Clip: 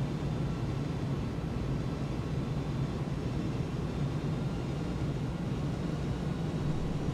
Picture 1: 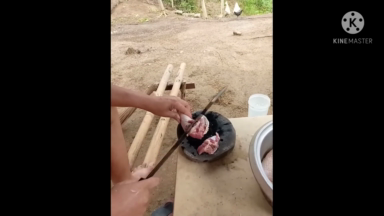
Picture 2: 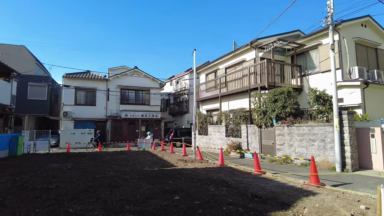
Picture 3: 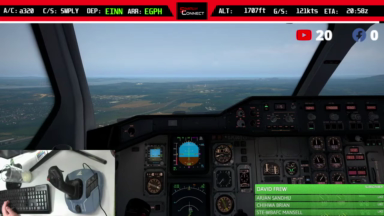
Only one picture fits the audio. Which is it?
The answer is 3